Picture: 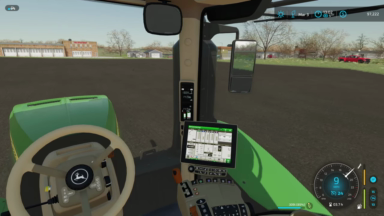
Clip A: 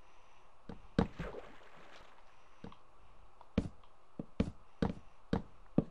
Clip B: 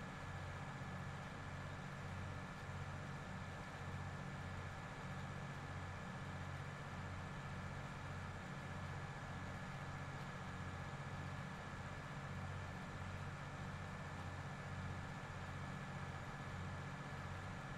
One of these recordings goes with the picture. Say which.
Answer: B